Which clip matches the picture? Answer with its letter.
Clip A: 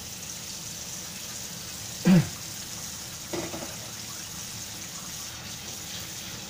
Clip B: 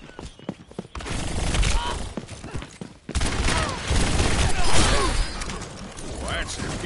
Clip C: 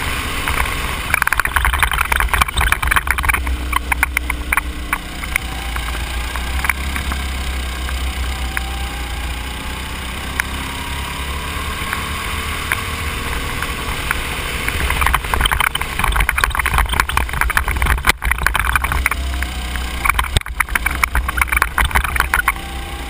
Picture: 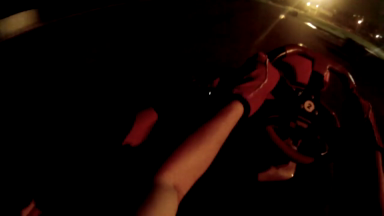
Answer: C